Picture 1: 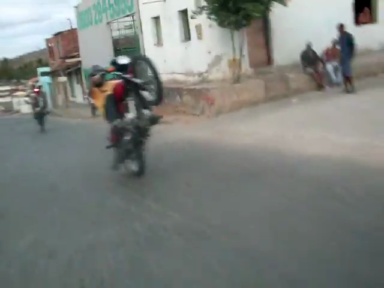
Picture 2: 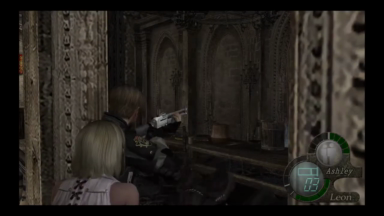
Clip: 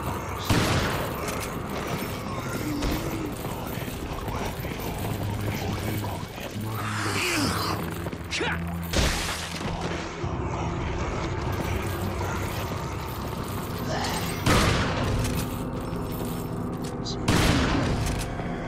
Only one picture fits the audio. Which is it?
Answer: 2